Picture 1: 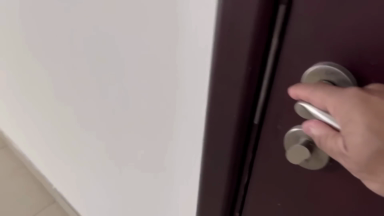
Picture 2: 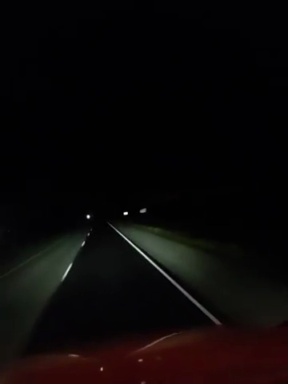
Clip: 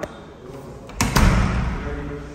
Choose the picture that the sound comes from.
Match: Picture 1